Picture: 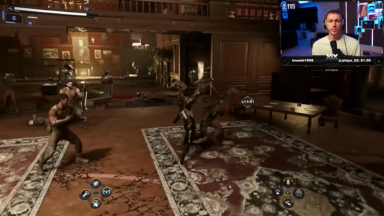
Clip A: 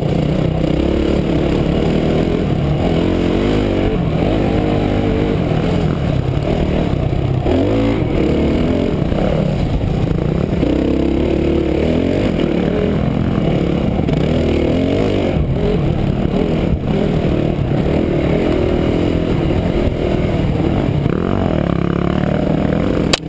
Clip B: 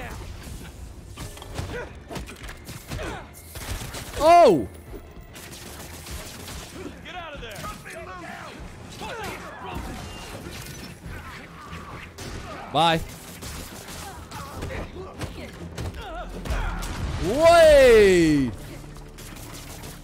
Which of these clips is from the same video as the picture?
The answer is B